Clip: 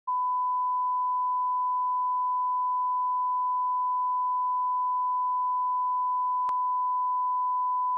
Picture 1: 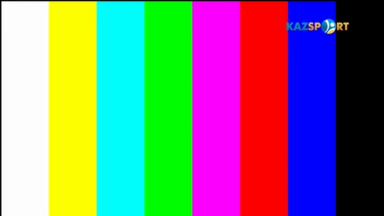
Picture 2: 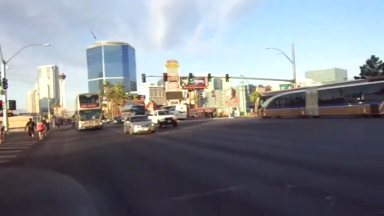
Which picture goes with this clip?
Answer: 1